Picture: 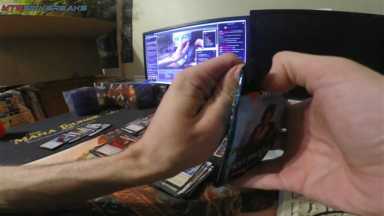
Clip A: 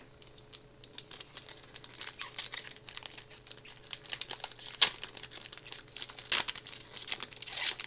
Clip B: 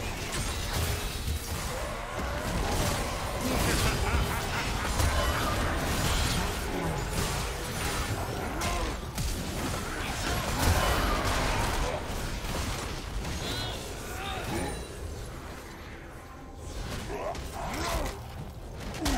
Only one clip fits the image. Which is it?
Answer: A